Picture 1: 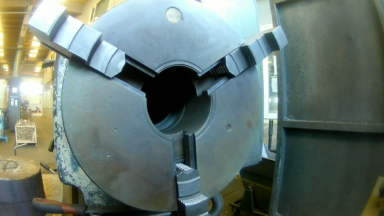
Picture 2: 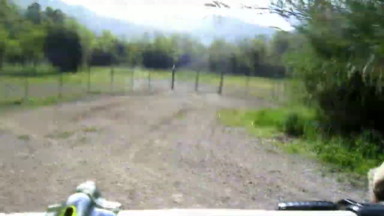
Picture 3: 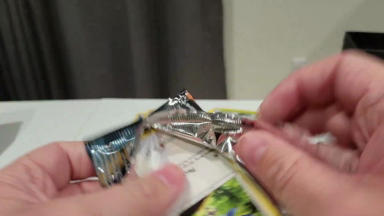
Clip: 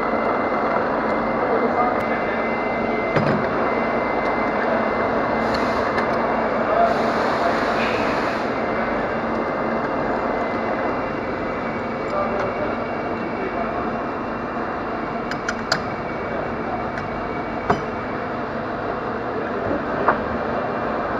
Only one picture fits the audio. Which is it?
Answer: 1